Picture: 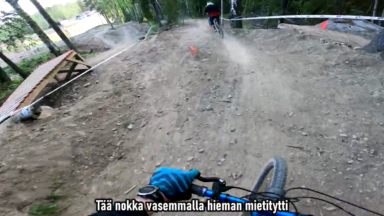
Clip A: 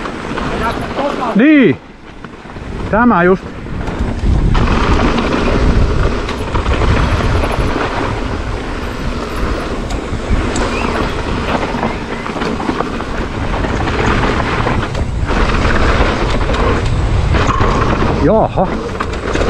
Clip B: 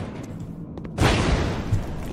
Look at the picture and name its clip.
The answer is A